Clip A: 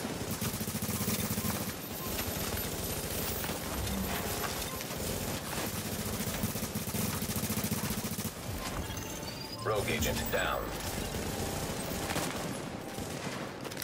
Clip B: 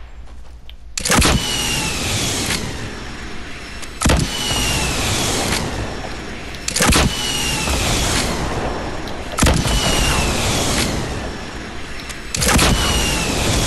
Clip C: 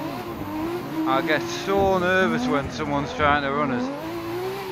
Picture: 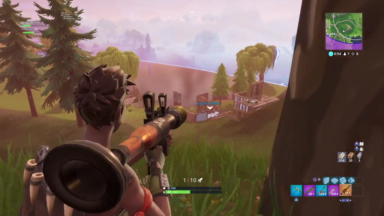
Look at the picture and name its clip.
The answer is B